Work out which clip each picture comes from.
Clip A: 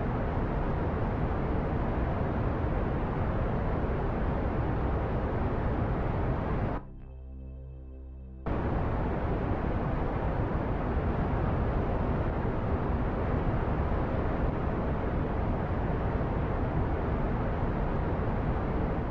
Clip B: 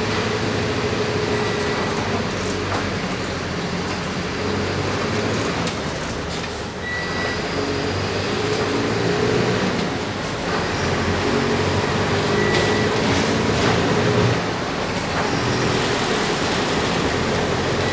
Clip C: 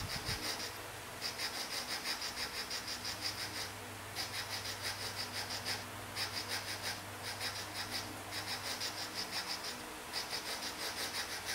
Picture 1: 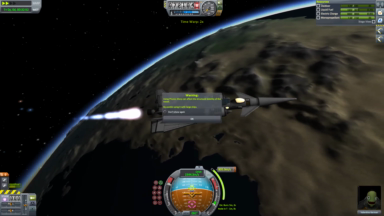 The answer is A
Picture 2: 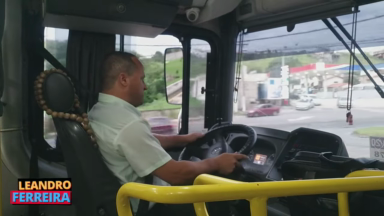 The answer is B